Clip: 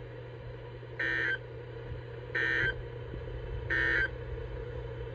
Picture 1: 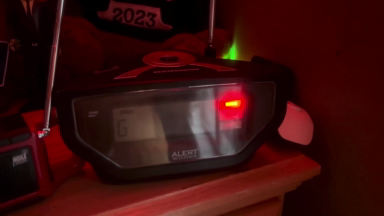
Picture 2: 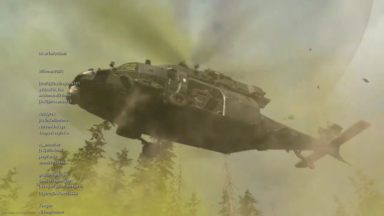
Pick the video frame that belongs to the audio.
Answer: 1